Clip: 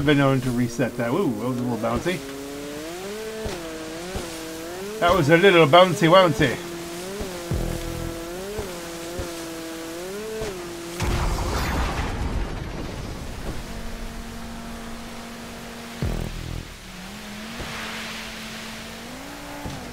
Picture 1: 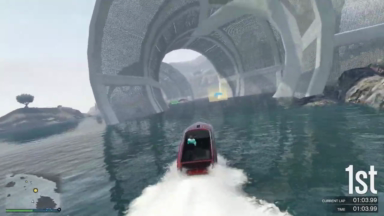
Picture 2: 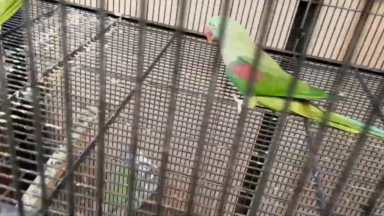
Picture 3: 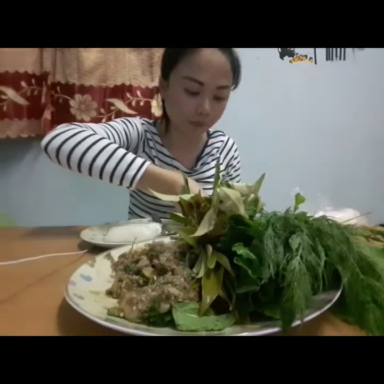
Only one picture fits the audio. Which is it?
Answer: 1